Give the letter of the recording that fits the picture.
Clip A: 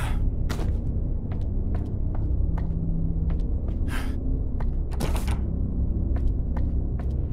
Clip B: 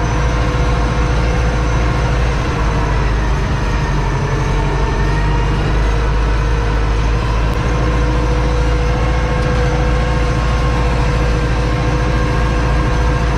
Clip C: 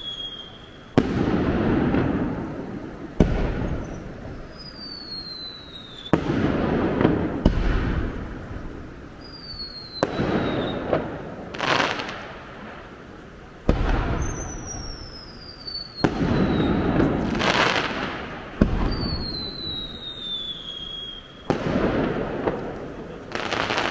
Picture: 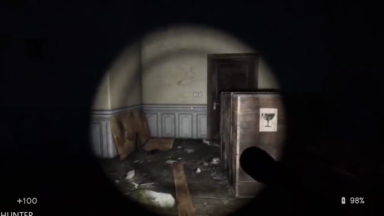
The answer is A